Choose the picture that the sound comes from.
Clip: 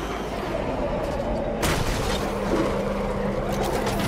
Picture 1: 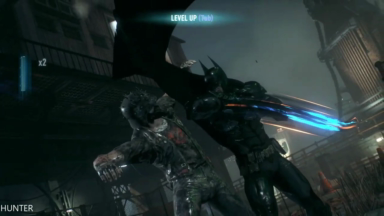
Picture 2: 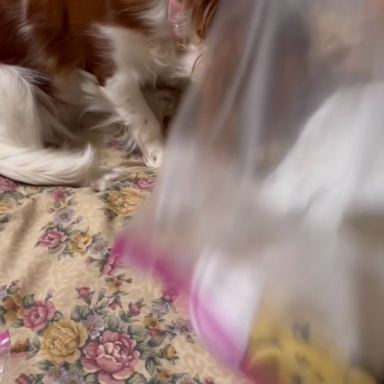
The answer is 1